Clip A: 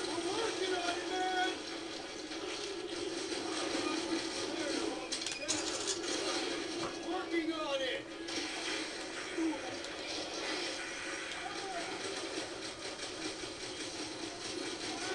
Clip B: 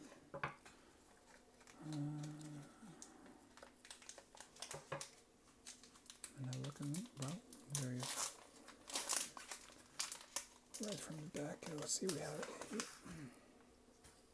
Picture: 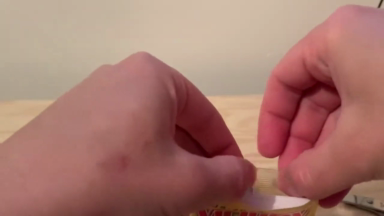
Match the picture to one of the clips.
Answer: B